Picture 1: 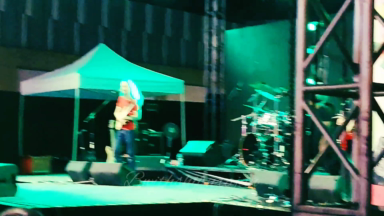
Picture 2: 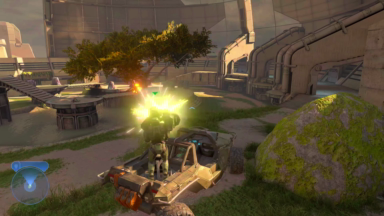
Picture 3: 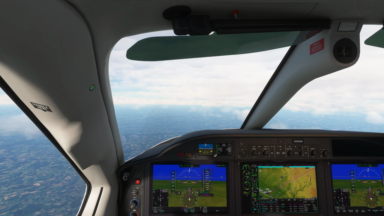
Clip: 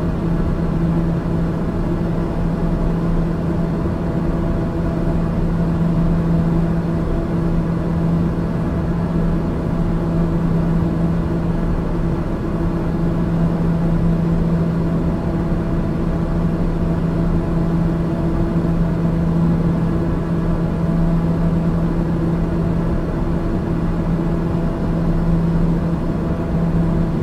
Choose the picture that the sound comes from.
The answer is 3